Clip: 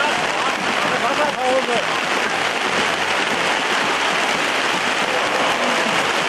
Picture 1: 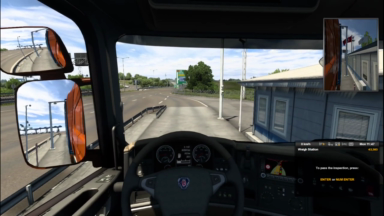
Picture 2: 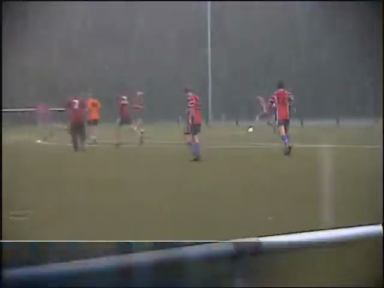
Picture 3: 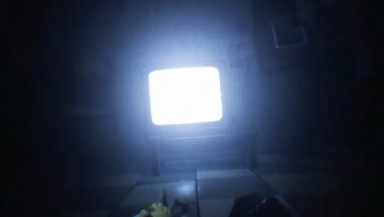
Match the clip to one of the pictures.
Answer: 2